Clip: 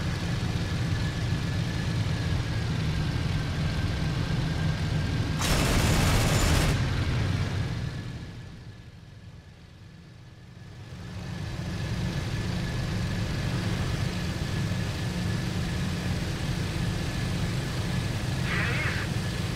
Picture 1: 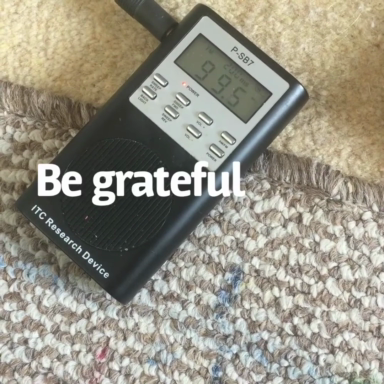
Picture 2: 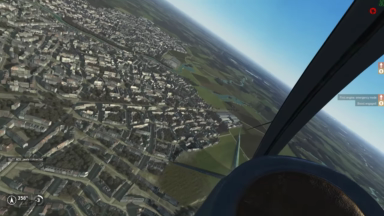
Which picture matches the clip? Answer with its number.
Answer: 2